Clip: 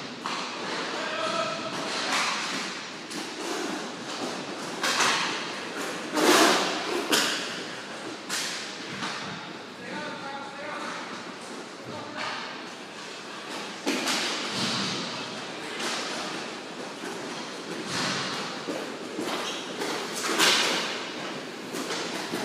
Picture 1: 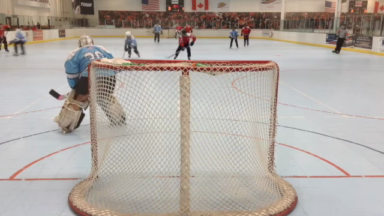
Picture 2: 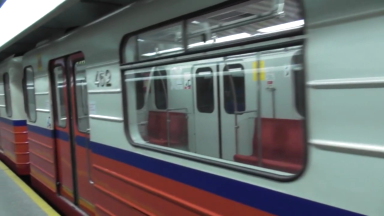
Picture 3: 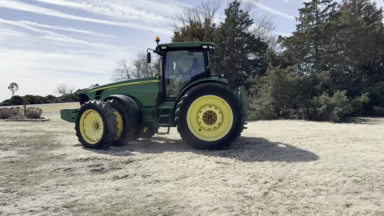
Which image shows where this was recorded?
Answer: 1